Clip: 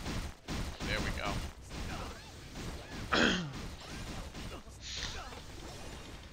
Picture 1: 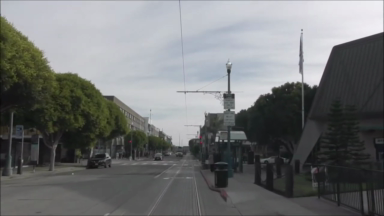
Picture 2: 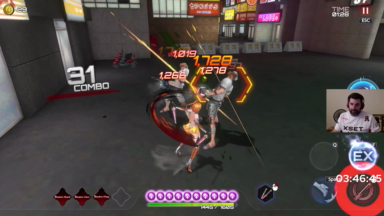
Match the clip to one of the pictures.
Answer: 2